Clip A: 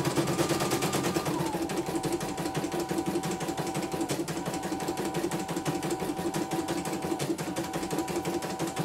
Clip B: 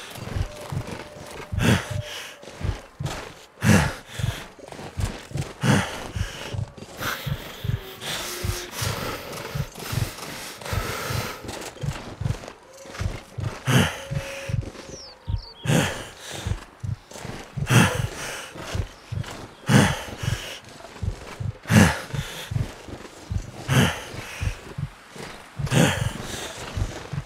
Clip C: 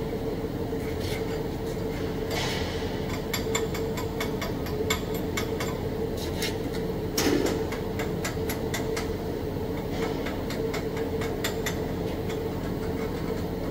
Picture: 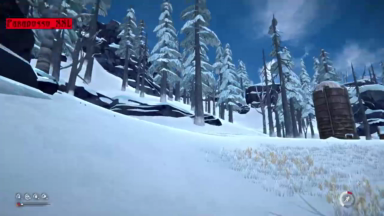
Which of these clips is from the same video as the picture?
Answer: B